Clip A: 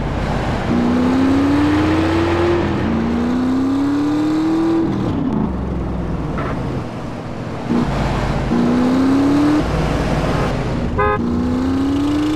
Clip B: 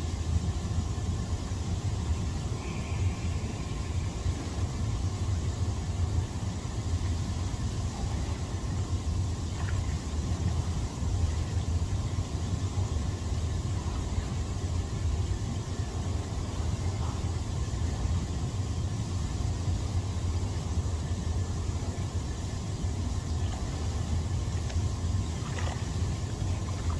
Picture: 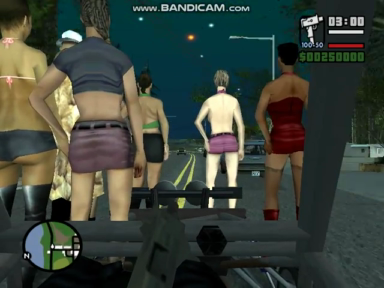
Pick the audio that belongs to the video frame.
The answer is A